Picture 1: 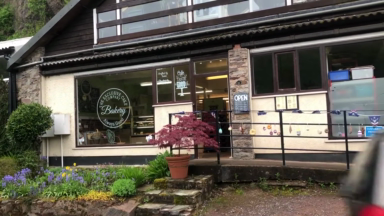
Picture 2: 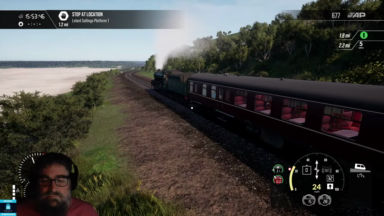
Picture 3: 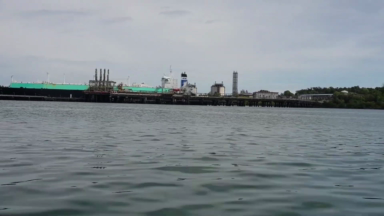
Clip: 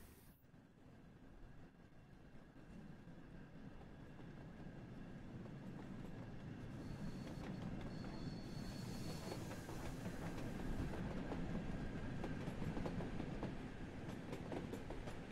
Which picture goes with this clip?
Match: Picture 2